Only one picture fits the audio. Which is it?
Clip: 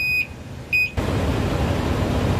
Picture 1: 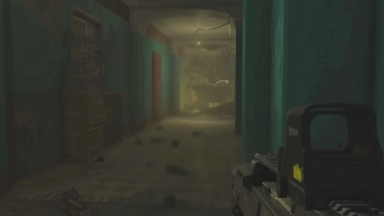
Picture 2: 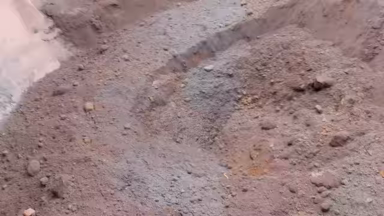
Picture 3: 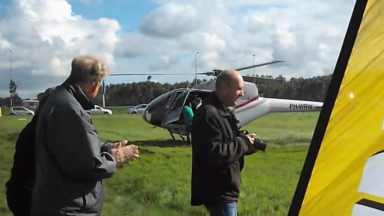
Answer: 2